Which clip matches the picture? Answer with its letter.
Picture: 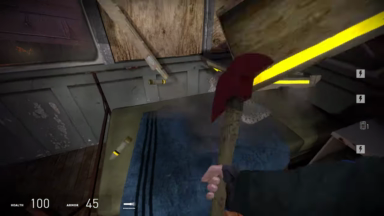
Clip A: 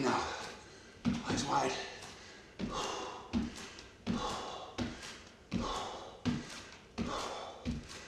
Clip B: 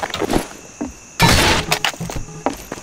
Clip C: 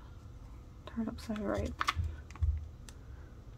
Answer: B